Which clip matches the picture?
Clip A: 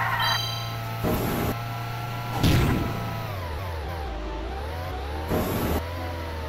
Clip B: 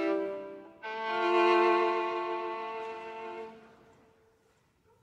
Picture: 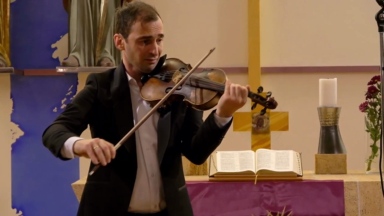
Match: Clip B